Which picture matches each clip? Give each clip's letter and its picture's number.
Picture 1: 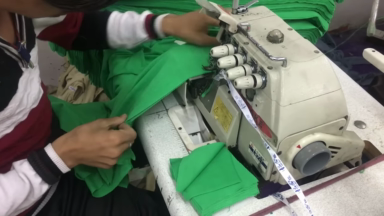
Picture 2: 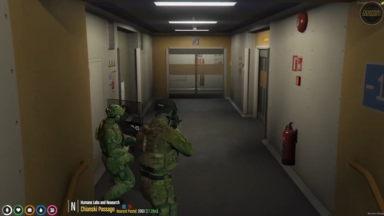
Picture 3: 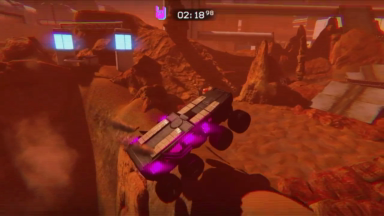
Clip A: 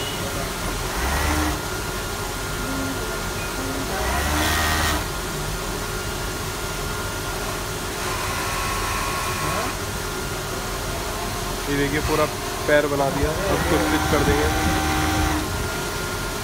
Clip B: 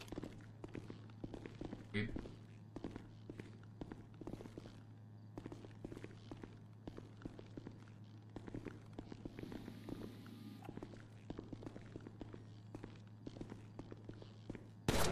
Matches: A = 1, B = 2